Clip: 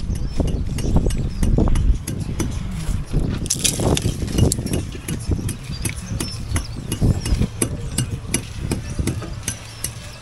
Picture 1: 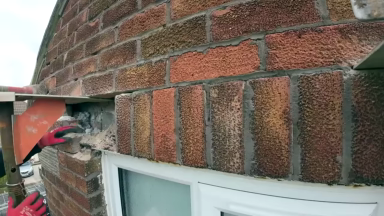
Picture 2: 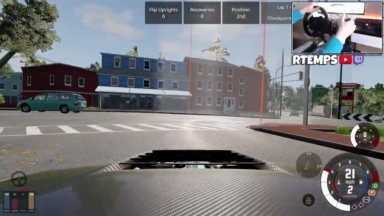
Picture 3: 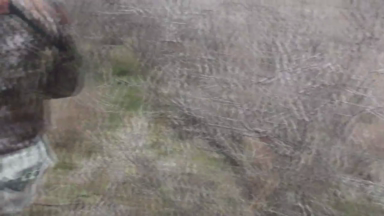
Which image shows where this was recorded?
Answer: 1